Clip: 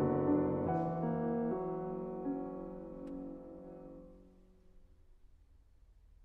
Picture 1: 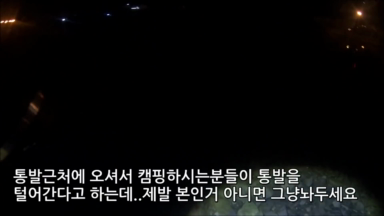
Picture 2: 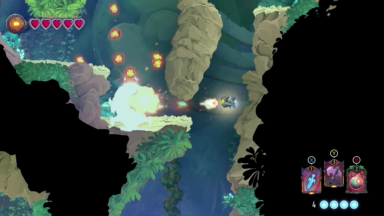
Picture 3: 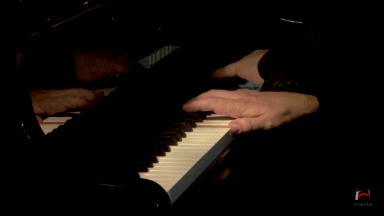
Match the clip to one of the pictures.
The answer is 3